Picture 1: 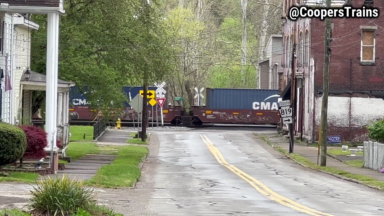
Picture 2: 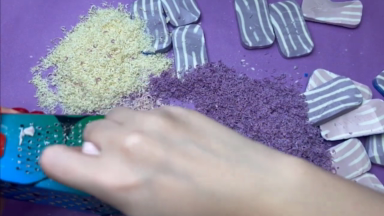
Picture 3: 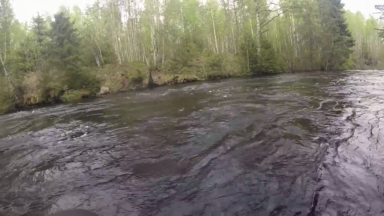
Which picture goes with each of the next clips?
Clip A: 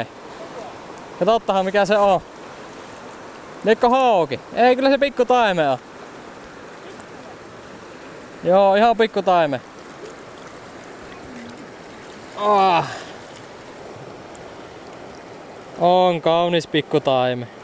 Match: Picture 3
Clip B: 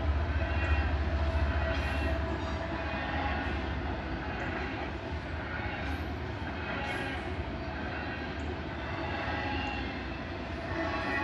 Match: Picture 1